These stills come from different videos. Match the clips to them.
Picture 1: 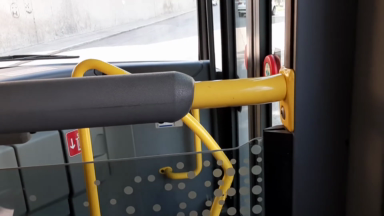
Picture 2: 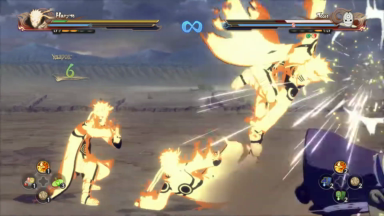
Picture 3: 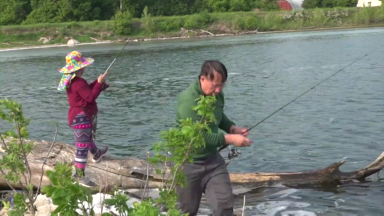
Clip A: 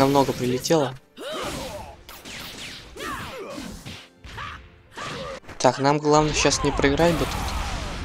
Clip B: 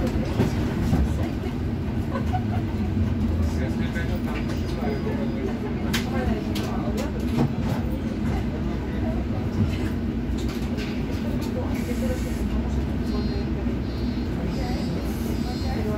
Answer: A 2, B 1